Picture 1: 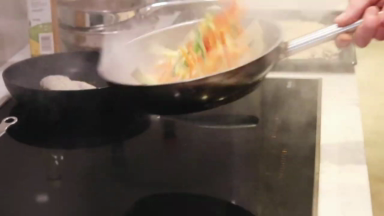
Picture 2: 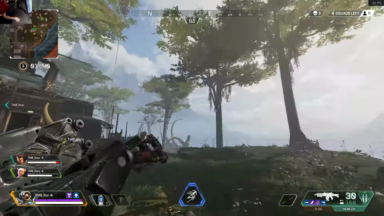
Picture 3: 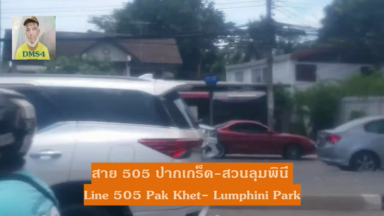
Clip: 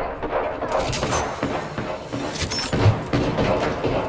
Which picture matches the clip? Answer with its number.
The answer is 2